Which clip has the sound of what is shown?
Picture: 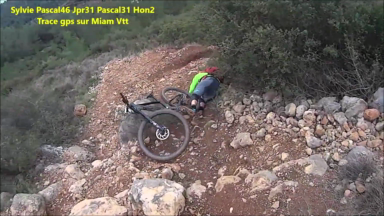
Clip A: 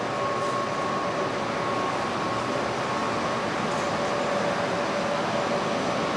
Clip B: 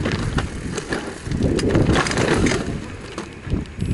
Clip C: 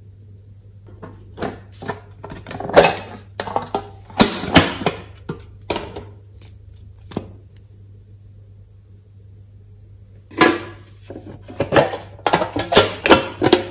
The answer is B